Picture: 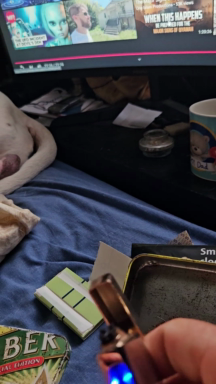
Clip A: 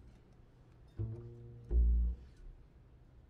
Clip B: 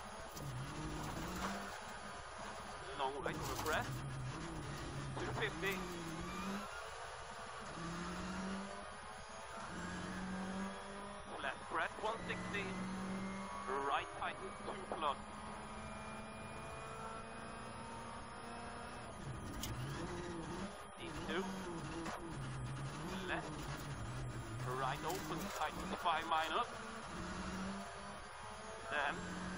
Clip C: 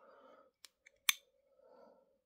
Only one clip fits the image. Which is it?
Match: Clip C